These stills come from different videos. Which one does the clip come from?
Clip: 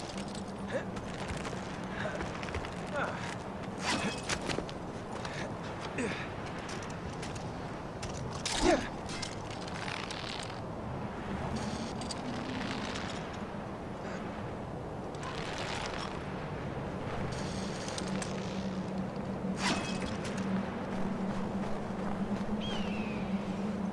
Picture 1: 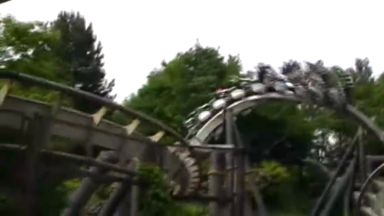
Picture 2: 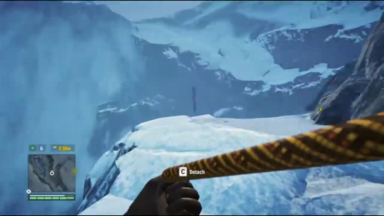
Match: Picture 2